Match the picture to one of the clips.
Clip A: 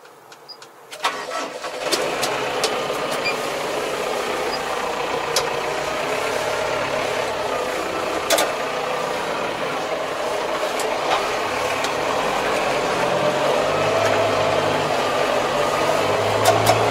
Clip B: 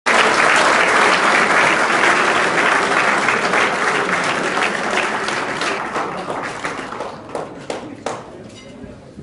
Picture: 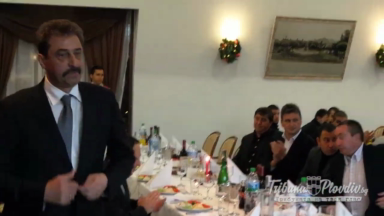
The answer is B